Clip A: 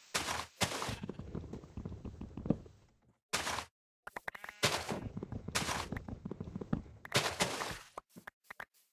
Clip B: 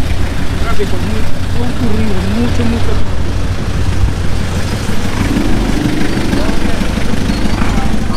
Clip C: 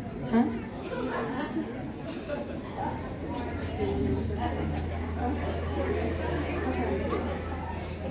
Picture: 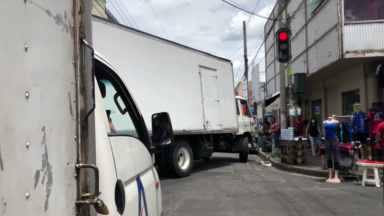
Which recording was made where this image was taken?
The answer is B